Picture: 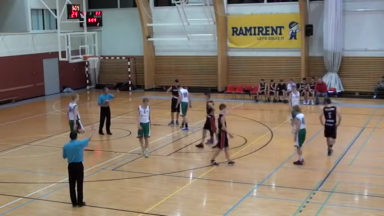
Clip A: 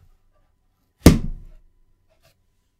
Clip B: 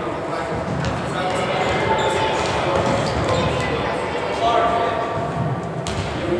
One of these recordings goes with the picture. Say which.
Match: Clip B